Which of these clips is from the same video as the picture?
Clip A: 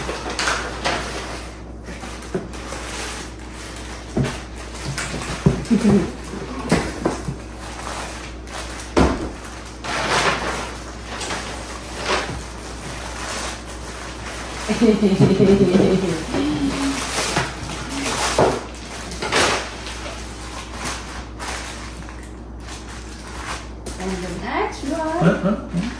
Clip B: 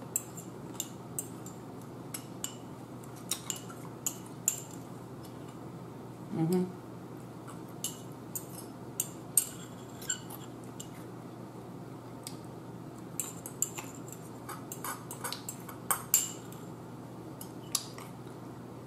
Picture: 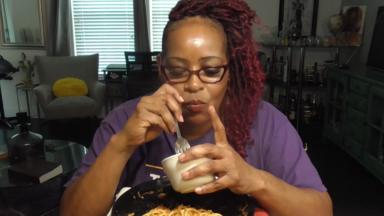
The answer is B